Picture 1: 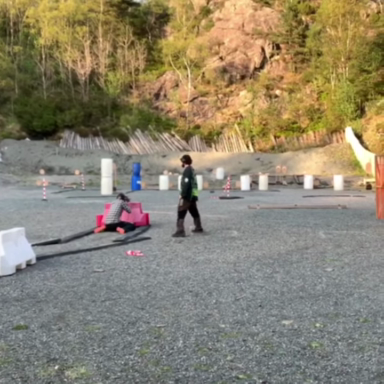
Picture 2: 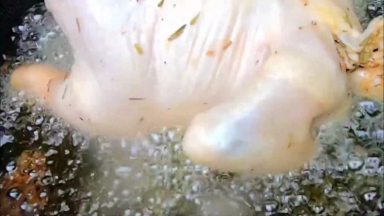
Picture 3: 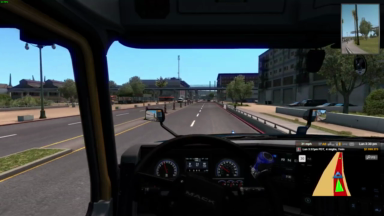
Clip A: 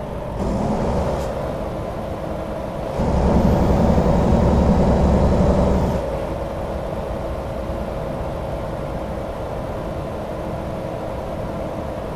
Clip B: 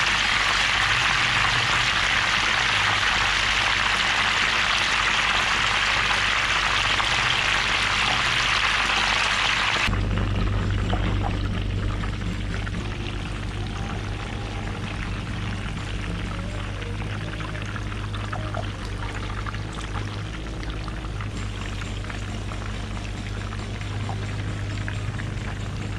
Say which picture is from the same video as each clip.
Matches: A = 3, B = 2